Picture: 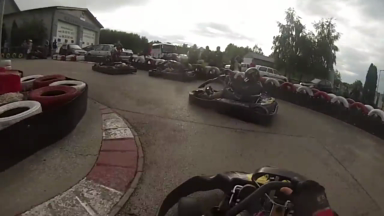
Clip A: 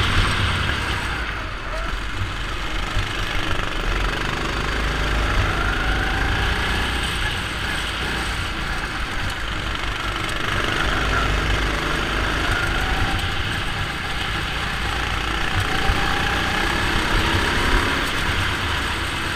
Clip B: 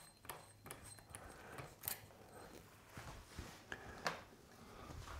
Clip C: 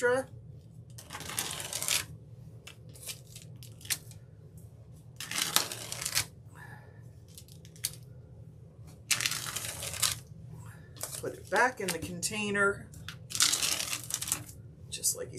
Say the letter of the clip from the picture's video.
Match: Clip A